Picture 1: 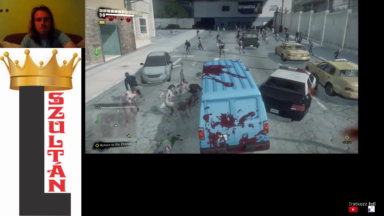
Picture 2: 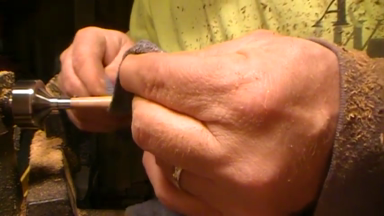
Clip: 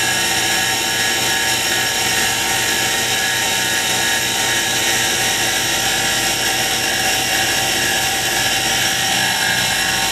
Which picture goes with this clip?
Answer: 2